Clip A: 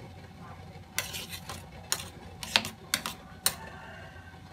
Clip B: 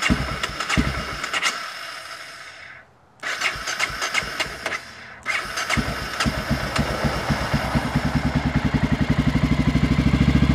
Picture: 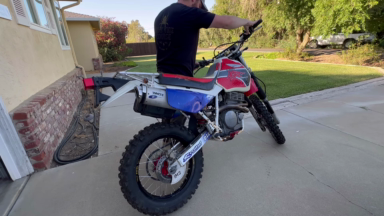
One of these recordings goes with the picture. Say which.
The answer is B